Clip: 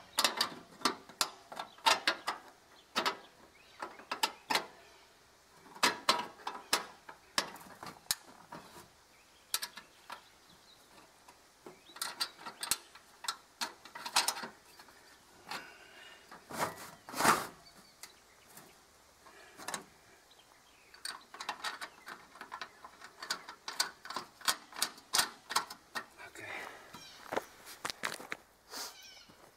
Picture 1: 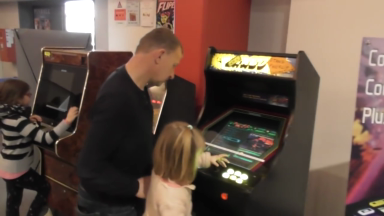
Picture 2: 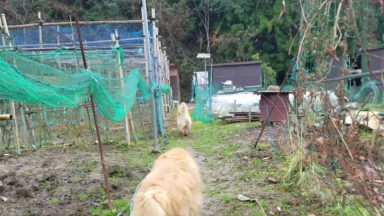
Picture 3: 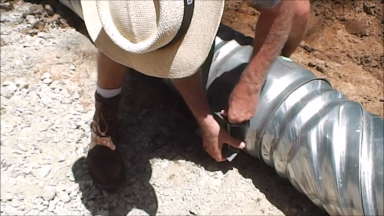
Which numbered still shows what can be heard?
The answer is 3